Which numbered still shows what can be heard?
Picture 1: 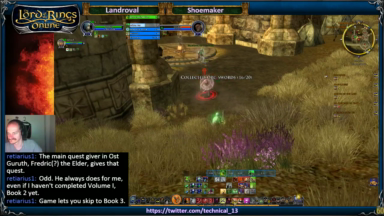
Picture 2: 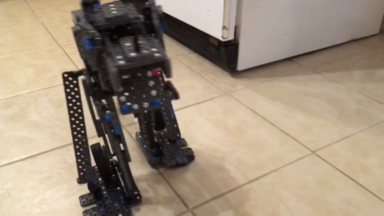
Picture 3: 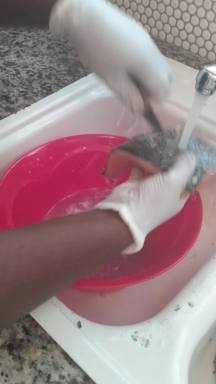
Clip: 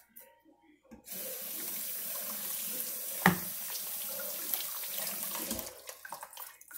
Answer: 3